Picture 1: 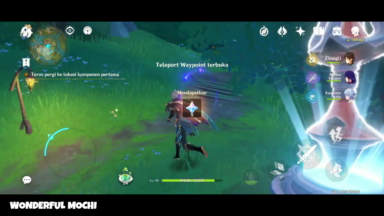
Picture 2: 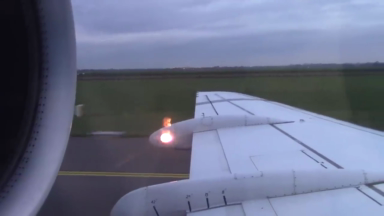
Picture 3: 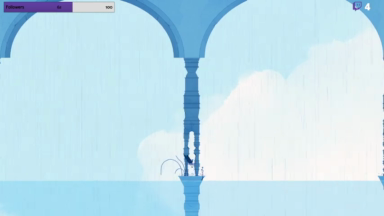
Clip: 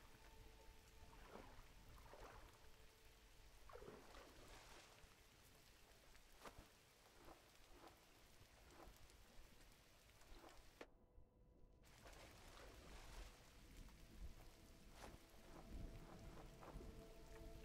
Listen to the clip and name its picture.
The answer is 3